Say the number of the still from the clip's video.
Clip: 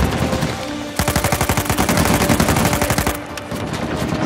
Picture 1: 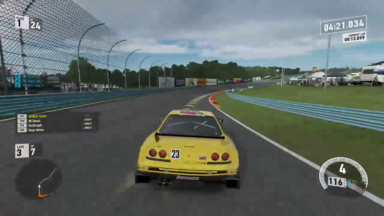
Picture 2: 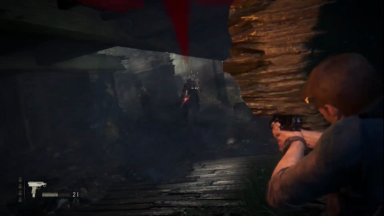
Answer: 2